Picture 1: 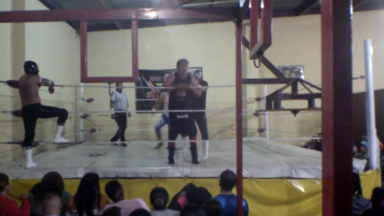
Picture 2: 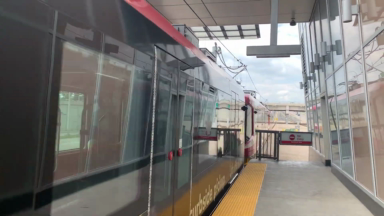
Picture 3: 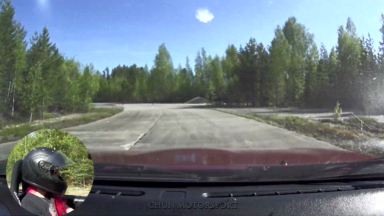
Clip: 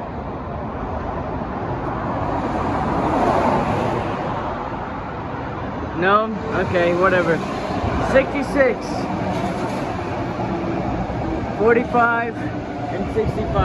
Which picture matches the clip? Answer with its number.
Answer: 2